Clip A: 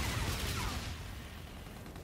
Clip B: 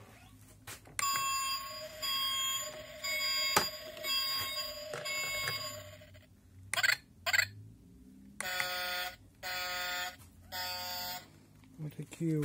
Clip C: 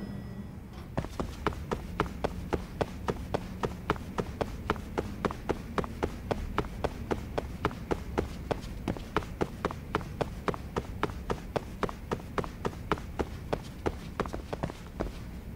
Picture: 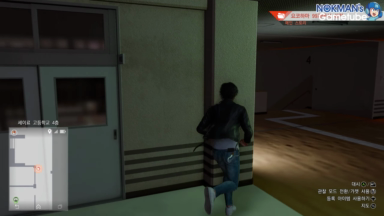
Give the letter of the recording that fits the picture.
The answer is C